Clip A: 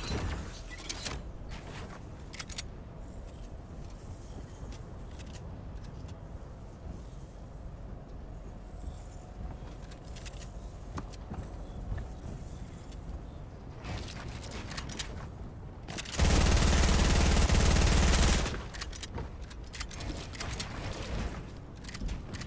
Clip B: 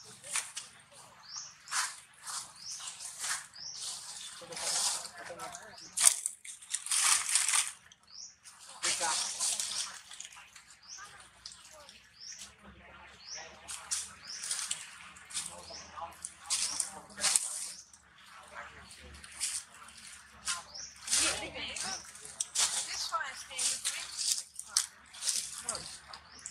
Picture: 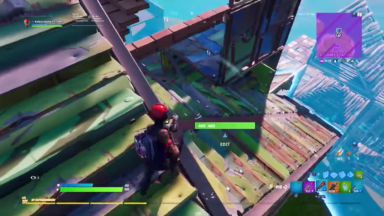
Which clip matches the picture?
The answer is A